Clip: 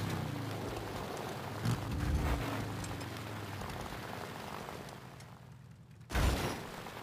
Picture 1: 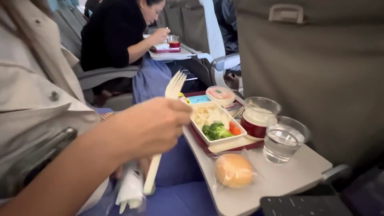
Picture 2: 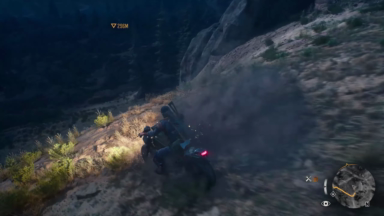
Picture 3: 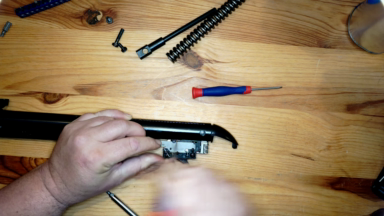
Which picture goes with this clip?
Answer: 2